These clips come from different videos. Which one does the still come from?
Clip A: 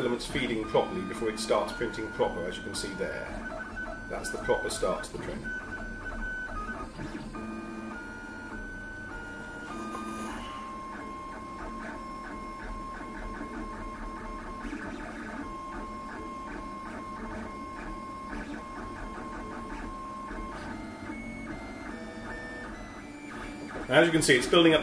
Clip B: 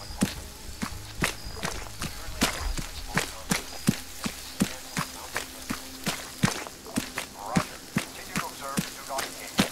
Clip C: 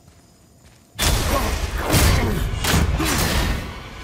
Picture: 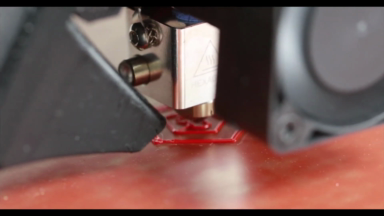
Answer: A